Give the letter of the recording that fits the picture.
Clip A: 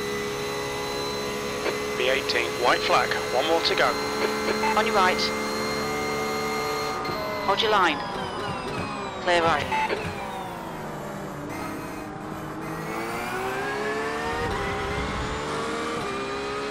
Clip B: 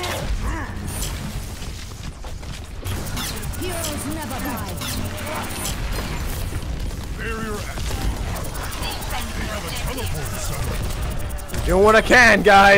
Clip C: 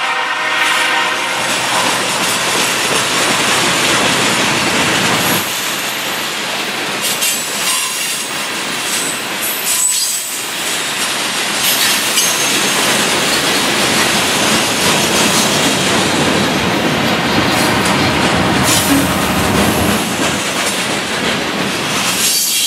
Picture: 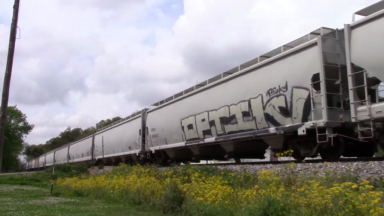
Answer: C